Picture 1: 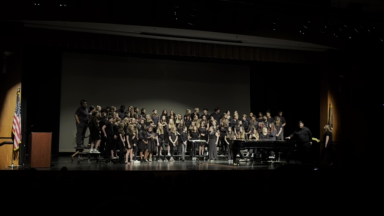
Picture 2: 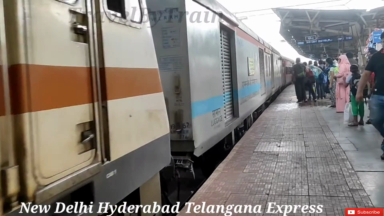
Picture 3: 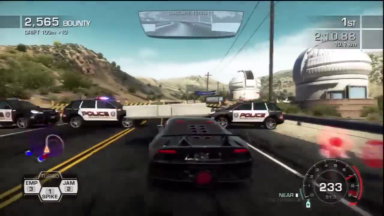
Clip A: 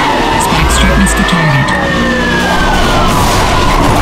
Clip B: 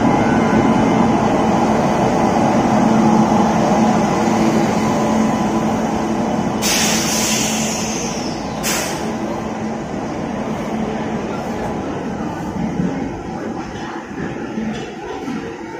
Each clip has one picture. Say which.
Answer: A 3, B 2